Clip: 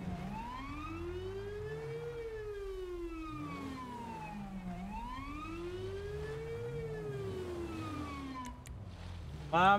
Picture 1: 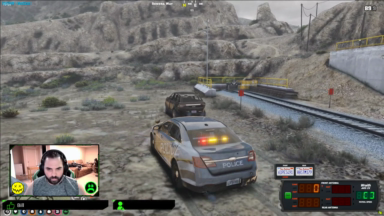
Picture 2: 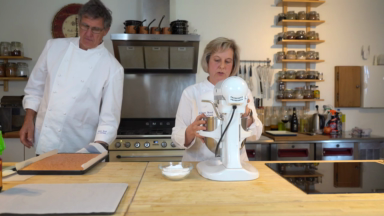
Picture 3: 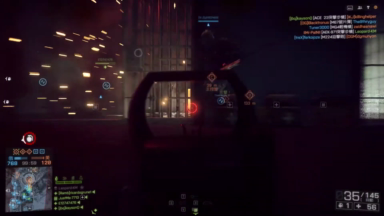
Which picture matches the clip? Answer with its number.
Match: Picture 1